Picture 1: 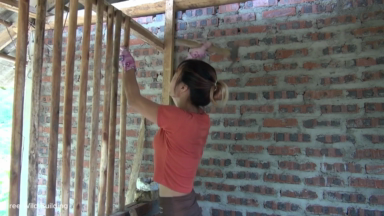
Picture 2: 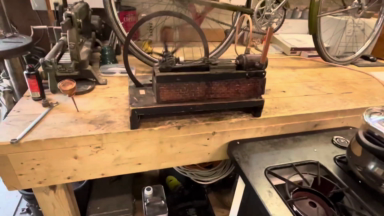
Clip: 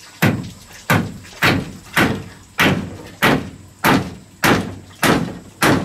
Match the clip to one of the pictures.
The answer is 1